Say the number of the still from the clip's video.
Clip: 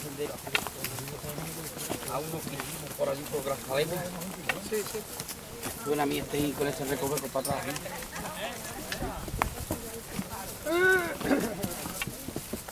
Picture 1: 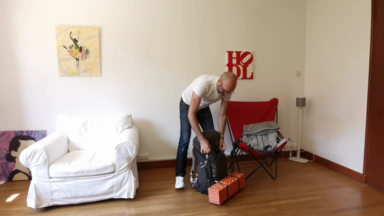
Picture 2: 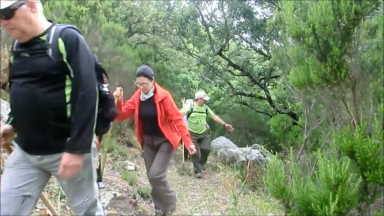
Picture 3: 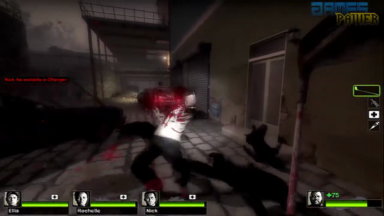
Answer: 2